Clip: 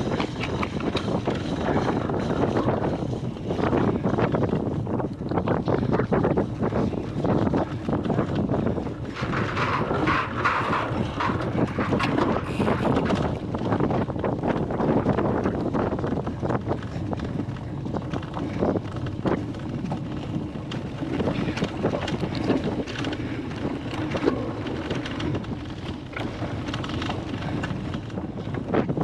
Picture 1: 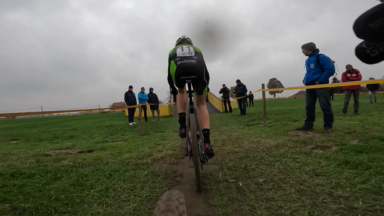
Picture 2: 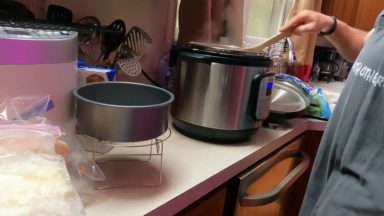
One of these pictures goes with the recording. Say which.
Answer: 1